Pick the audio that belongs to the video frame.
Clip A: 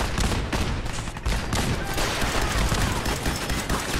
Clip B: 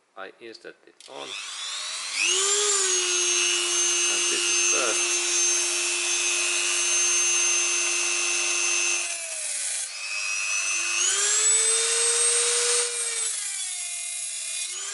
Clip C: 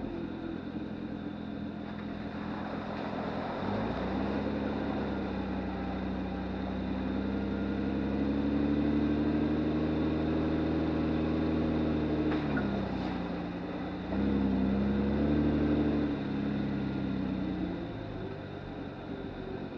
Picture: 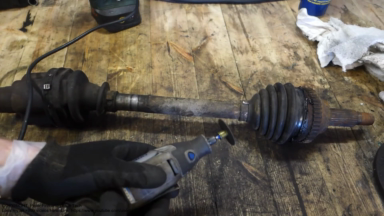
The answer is B